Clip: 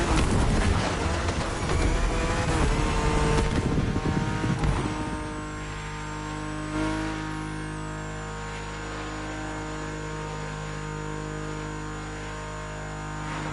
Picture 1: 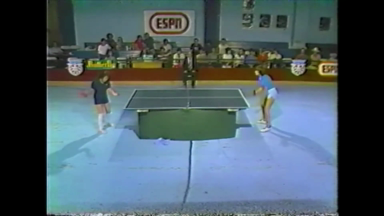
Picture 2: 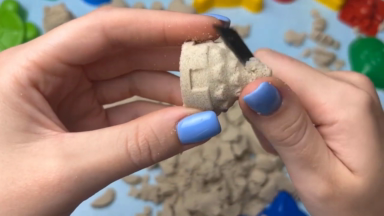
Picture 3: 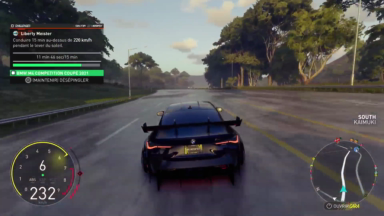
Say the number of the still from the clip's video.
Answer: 3